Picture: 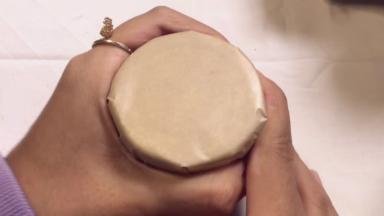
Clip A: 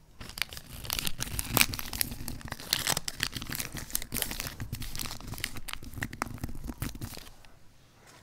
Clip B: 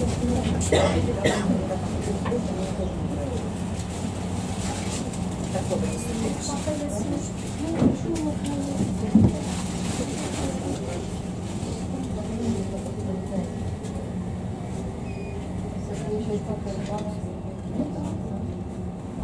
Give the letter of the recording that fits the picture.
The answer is A